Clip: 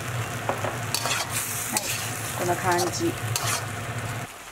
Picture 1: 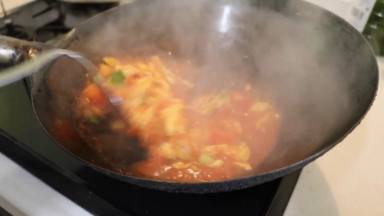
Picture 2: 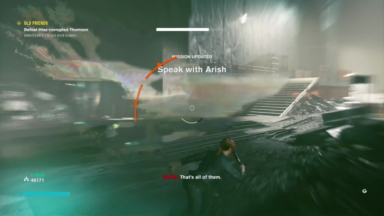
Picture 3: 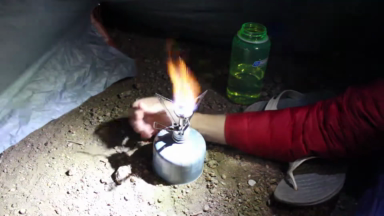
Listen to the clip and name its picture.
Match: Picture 1